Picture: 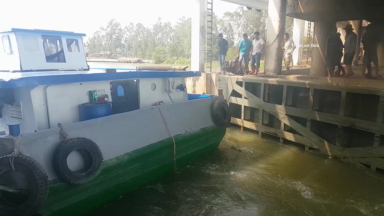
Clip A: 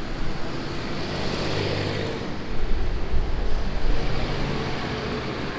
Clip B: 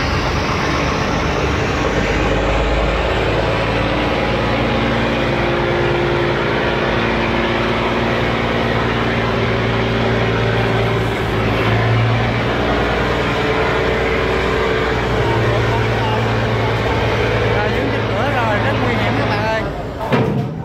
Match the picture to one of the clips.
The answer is B